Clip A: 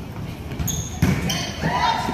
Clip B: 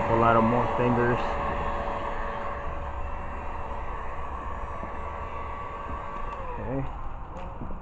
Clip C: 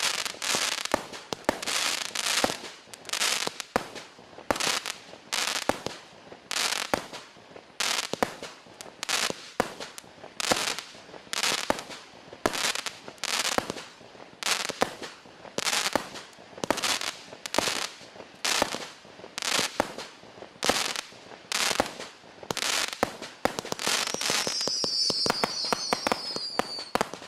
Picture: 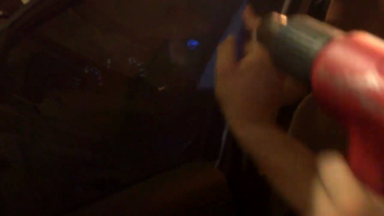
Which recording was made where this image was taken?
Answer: B